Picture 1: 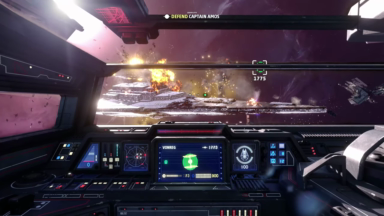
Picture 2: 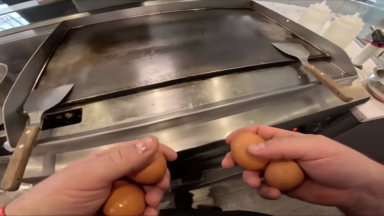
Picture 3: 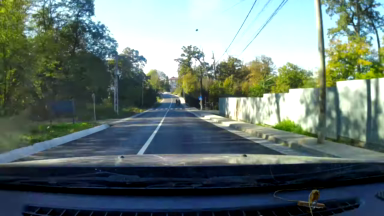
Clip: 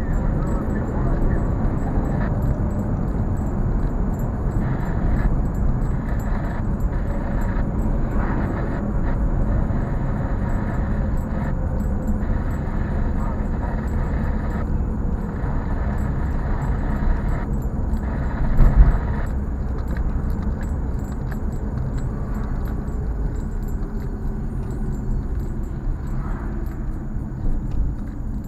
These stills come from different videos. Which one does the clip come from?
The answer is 3